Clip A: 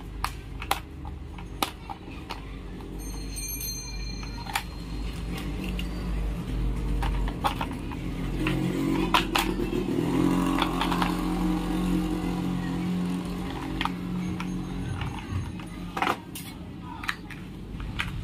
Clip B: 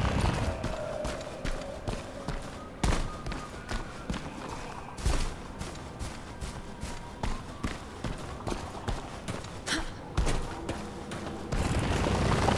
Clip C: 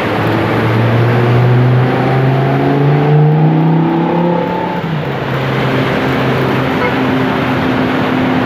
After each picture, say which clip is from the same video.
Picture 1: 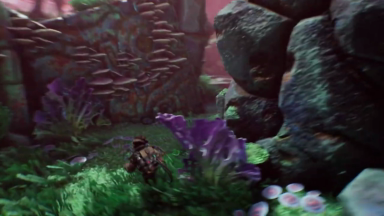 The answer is B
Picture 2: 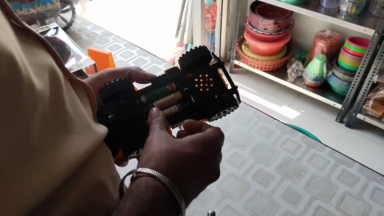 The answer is A